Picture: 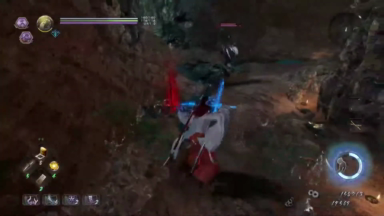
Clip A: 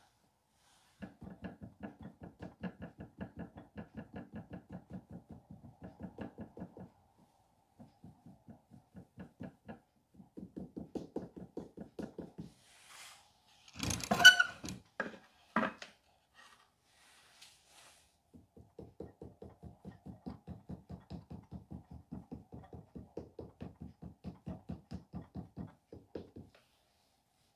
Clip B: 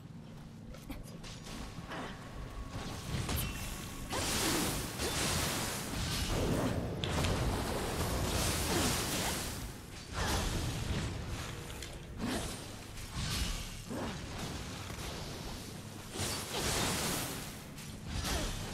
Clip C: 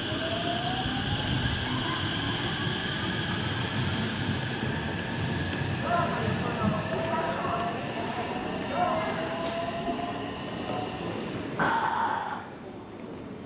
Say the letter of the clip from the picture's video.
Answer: B